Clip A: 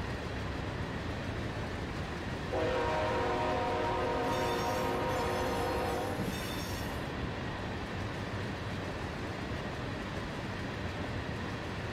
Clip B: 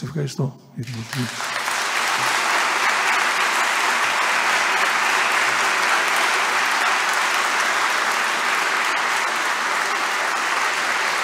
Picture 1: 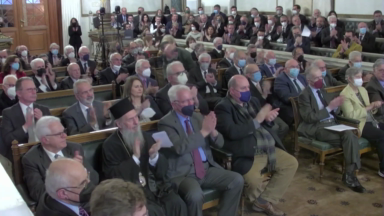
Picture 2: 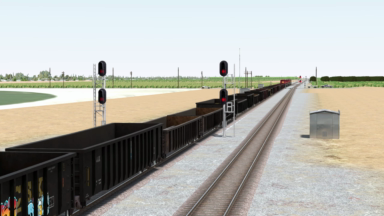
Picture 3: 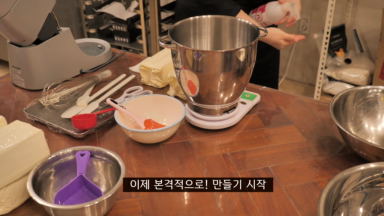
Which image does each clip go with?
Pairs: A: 2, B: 1